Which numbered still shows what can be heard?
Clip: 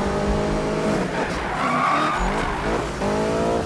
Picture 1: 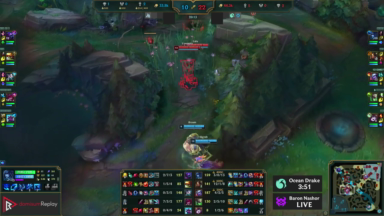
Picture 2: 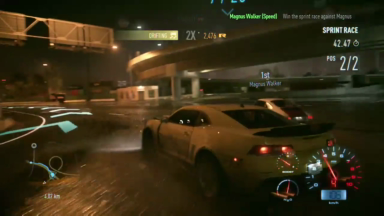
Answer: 2